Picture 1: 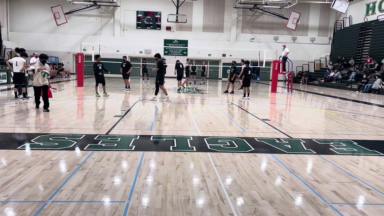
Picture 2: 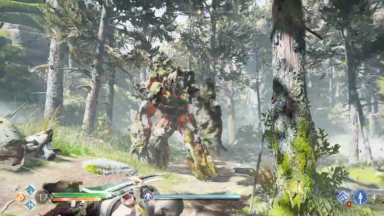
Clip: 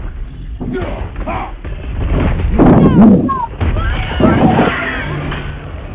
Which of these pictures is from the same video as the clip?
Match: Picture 2